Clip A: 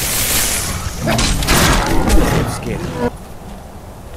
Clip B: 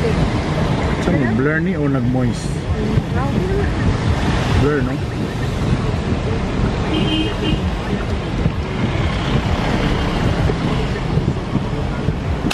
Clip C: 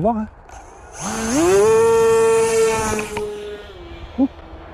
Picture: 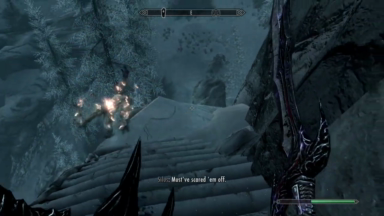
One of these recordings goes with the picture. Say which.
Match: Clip A